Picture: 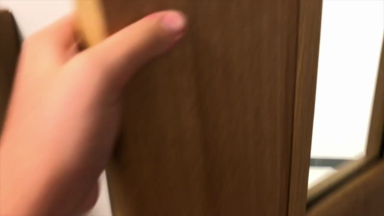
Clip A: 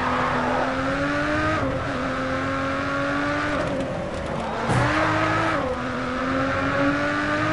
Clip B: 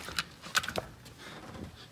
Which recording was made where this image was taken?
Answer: B